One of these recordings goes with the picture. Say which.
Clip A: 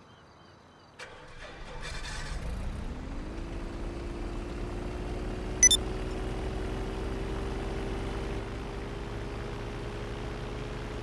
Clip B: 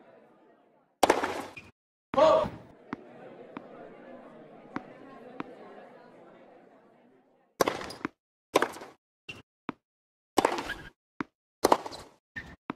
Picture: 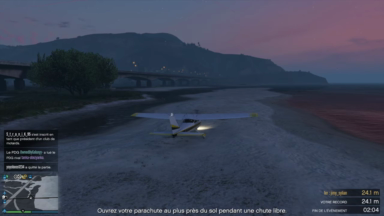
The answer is A